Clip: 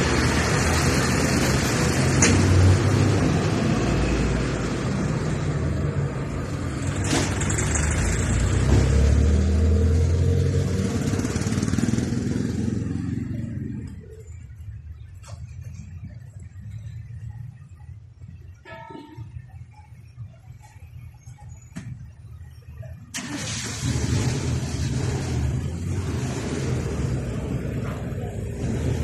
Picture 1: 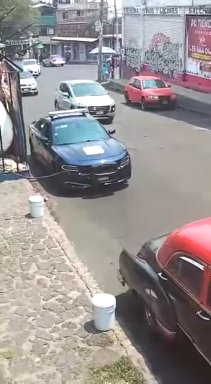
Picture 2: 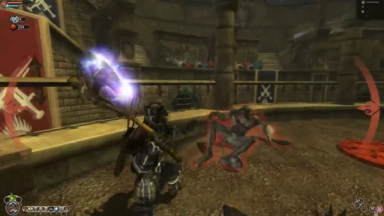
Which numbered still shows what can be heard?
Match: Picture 1